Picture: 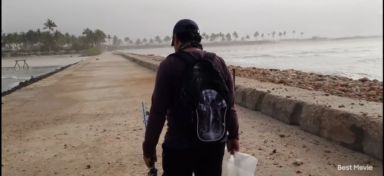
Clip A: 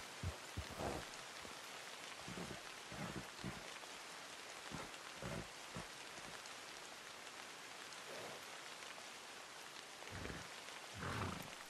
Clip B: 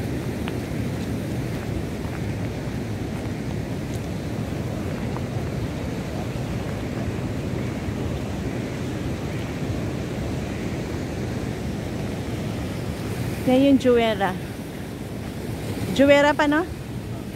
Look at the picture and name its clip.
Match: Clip B